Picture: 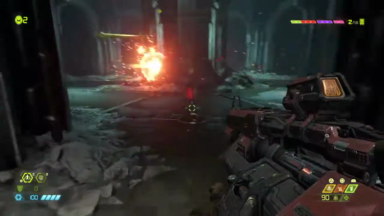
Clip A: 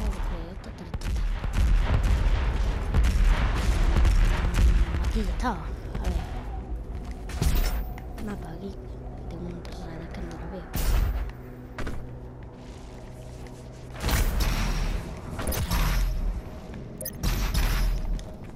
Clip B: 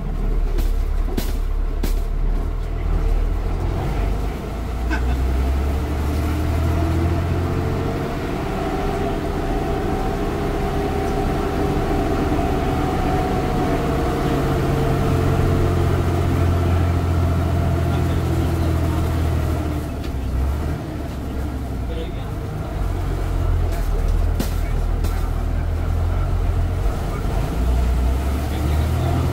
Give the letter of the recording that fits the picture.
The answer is A